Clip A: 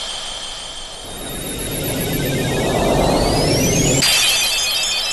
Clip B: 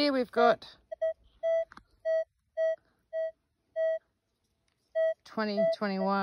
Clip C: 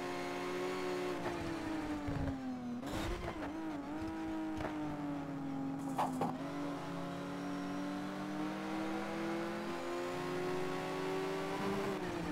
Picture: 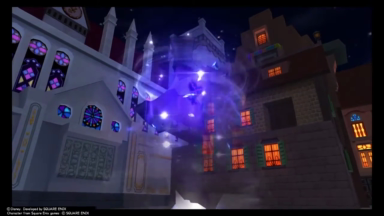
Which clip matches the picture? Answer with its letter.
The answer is A